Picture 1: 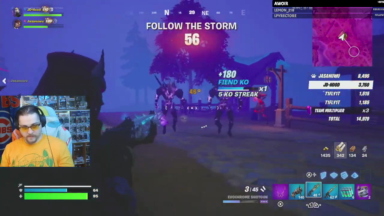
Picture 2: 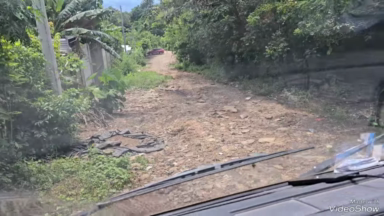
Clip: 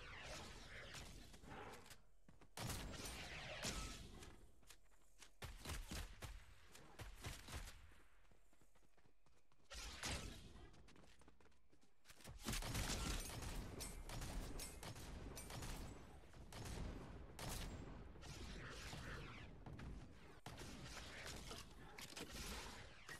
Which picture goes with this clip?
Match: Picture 1